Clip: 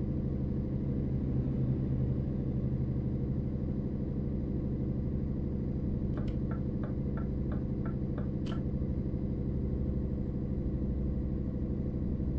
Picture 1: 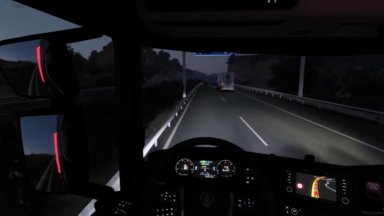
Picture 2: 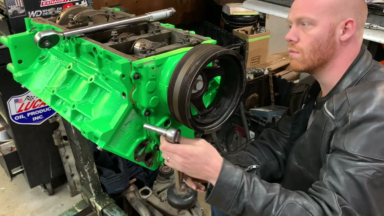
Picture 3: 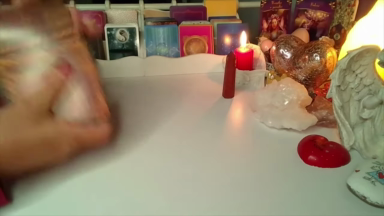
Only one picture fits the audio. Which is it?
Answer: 1